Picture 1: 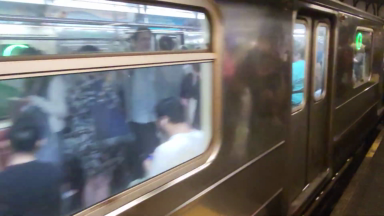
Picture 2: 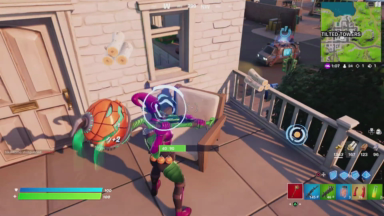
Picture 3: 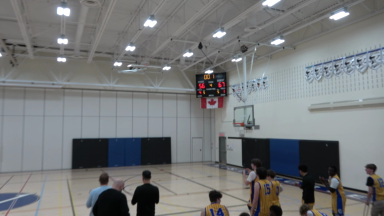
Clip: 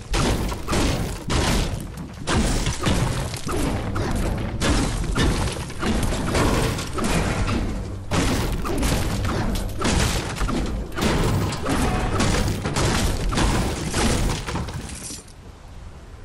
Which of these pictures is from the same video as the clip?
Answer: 2